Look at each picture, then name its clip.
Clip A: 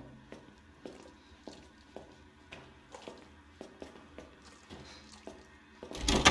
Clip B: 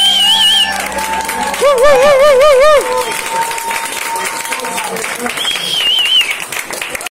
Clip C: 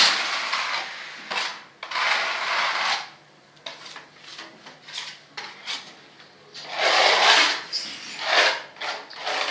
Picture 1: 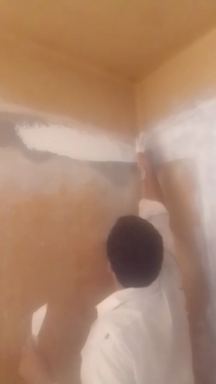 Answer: C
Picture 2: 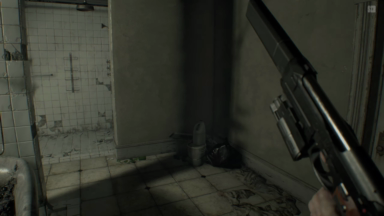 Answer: A